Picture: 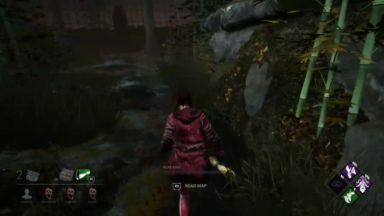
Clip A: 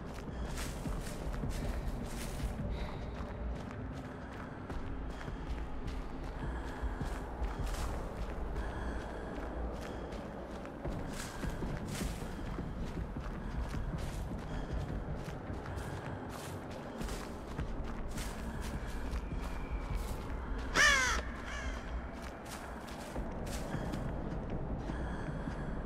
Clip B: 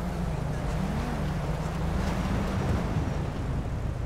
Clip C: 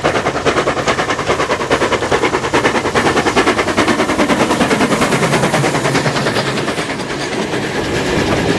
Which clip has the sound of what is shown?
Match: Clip A